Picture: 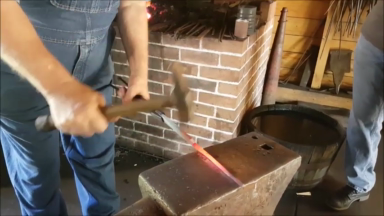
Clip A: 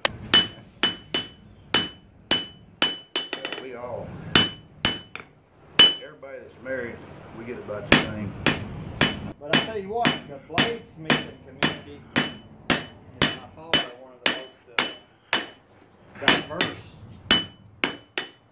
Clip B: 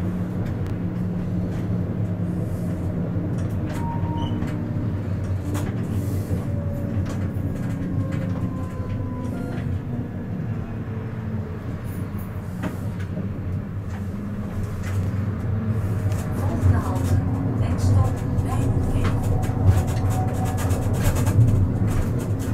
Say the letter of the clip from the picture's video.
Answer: A